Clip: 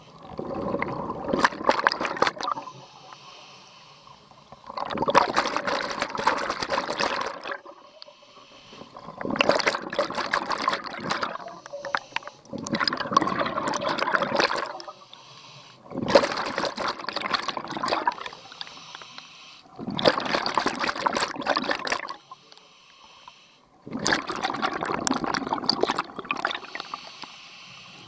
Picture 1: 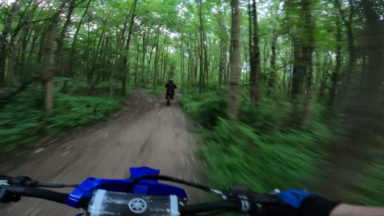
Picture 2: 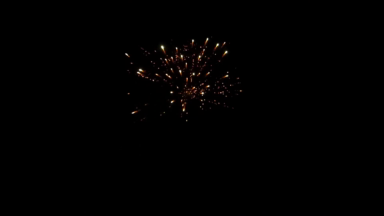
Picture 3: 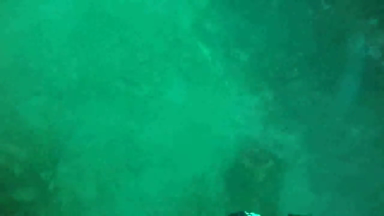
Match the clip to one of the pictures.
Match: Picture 3